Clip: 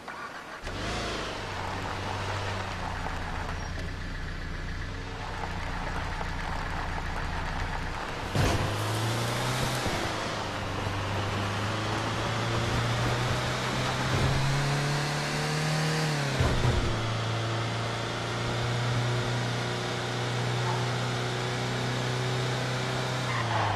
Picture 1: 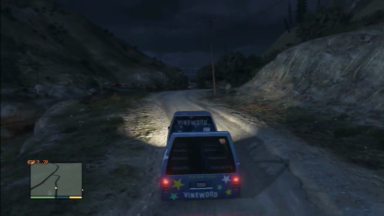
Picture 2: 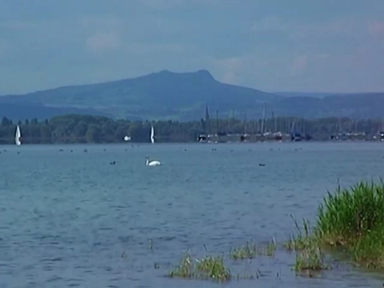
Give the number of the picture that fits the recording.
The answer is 1